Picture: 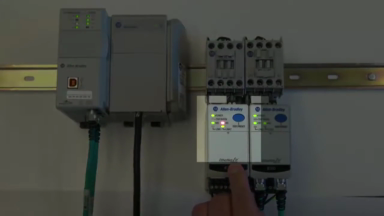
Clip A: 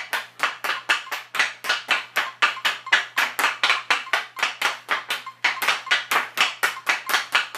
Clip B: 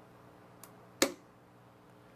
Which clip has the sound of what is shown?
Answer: B